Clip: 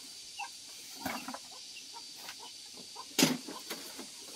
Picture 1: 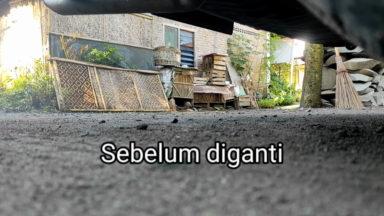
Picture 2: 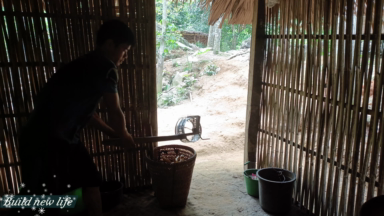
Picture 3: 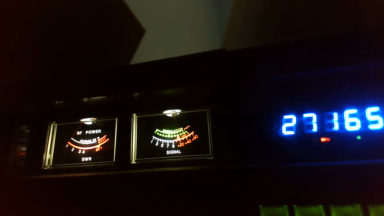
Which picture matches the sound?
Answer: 2